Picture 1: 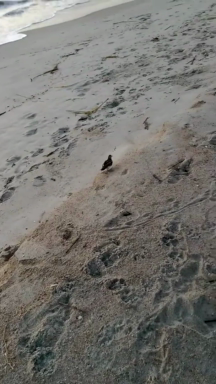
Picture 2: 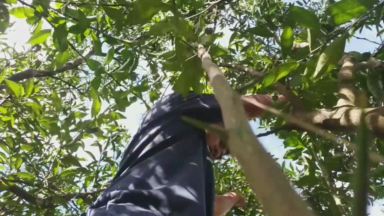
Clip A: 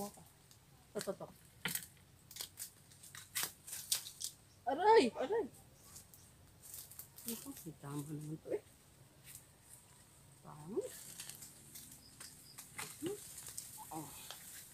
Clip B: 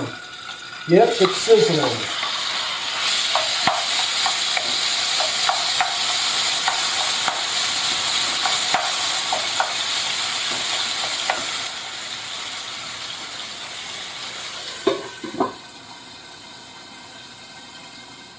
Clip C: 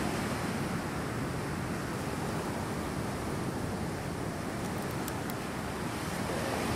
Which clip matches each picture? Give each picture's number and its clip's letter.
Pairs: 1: C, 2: A